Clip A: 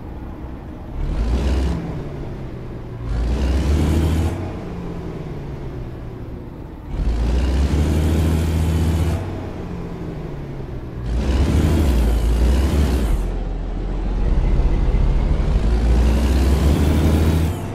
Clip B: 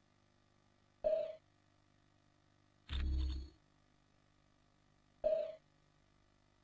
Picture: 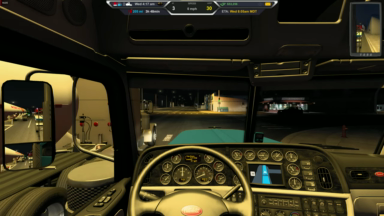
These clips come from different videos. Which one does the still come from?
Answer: A